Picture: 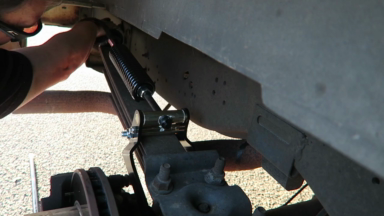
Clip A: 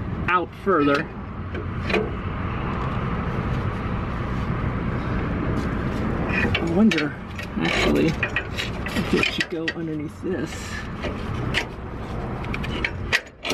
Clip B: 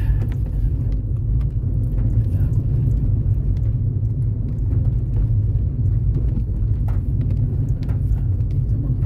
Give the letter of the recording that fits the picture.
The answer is A